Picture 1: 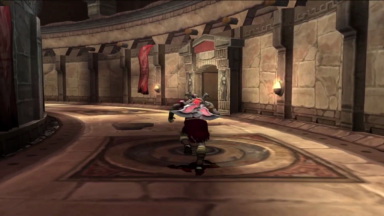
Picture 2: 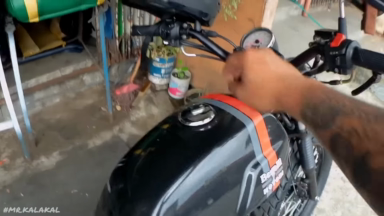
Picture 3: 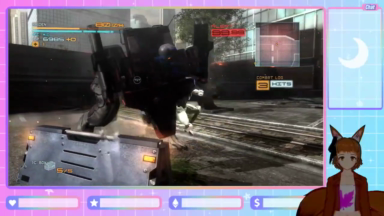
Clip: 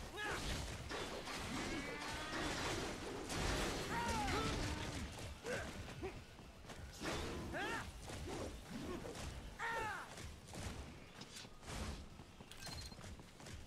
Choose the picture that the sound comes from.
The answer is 3